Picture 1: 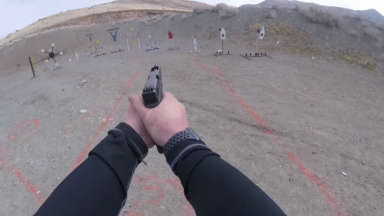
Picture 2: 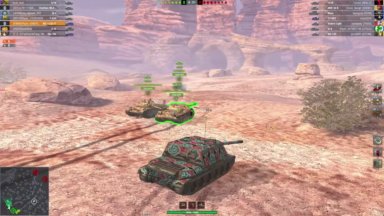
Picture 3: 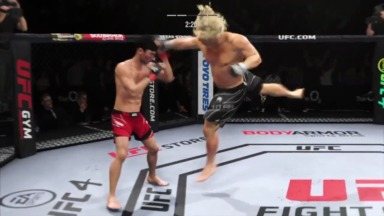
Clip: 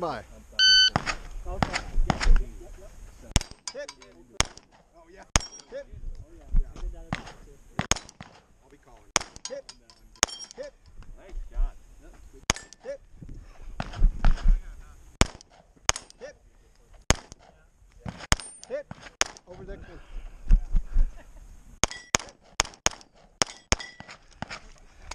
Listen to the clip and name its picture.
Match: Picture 1